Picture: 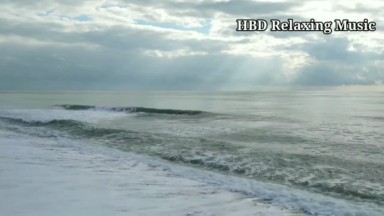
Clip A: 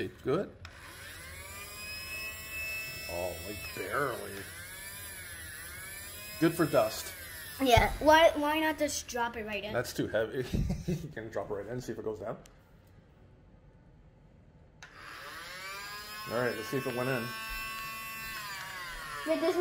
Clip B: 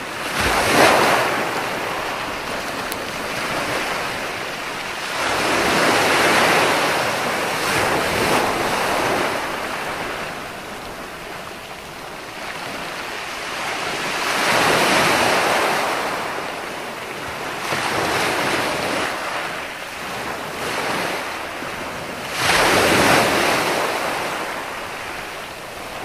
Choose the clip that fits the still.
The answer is B